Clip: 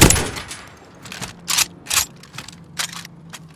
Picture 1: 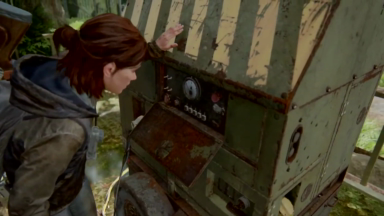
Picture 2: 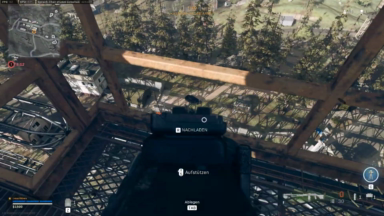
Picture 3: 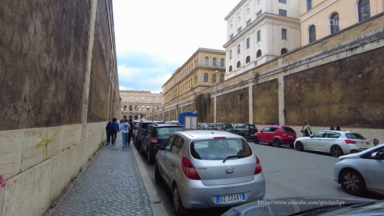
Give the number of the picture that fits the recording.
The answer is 2